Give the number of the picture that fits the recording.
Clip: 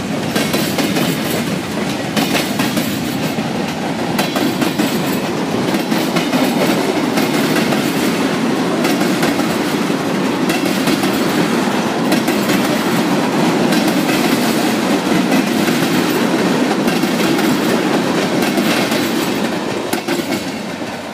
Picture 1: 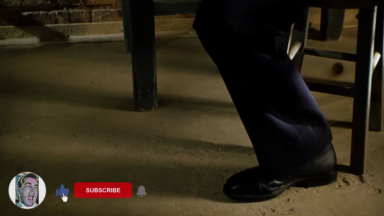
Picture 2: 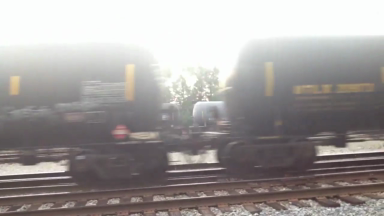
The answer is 2